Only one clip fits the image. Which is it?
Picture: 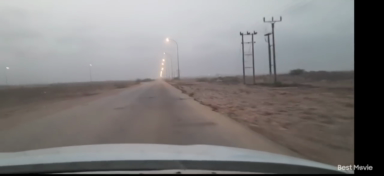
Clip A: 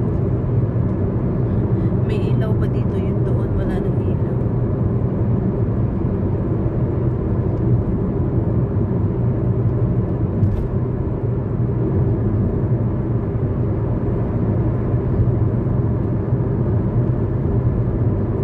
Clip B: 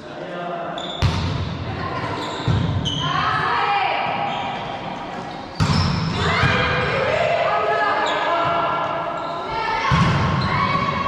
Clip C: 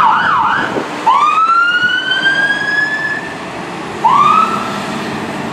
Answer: A